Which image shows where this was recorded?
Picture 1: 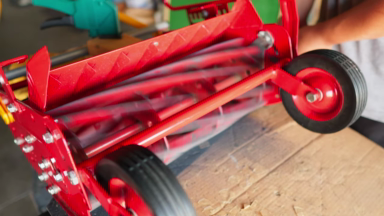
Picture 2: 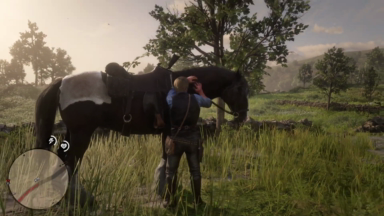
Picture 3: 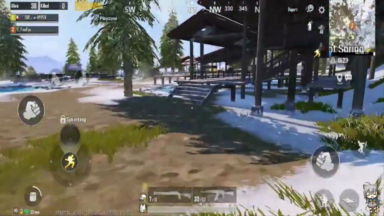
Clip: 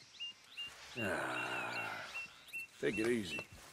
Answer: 2